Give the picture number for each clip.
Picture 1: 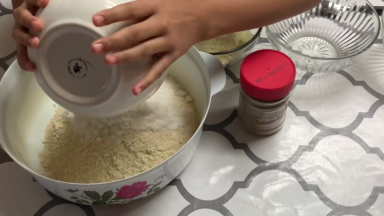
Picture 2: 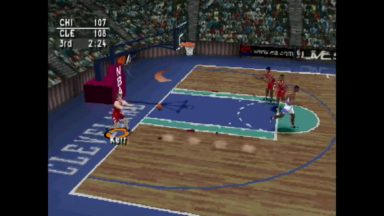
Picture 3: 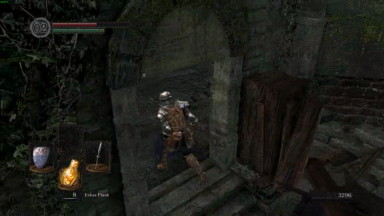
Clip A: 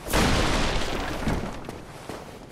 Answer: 3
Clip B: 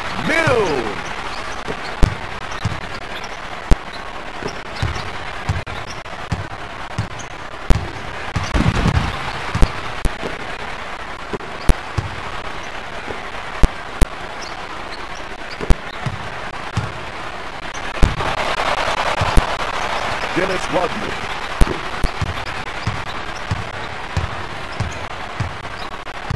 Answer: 2